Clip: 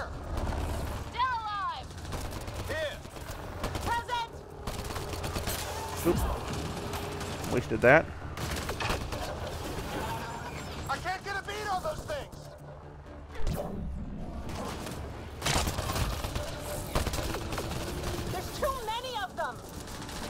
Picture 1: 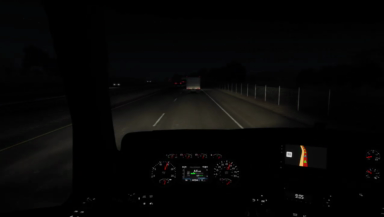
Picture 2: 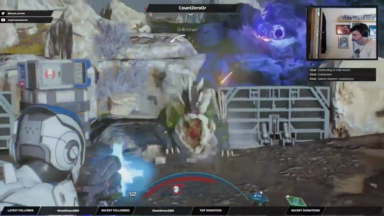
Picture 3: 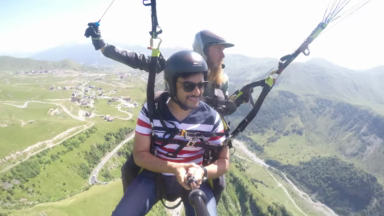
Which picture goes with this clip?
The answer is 2